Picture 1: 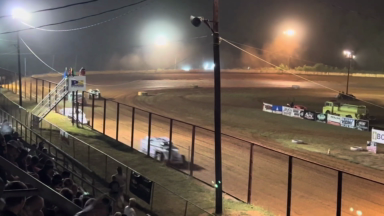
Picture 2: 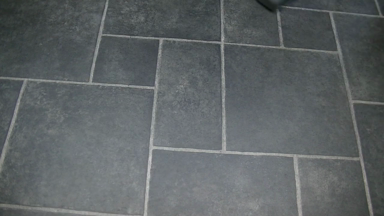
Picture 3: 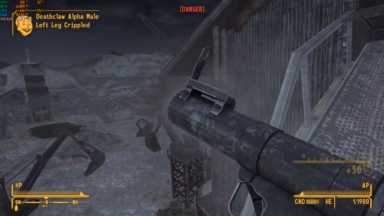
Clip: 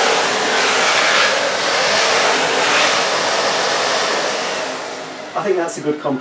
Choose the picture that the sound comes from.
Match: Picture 2